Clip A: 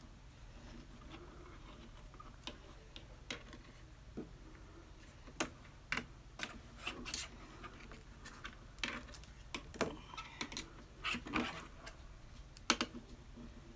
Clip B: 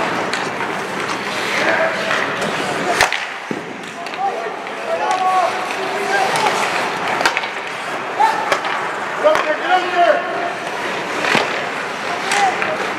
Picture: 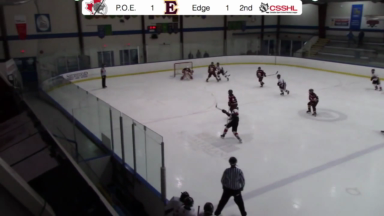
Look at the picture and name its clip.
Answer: B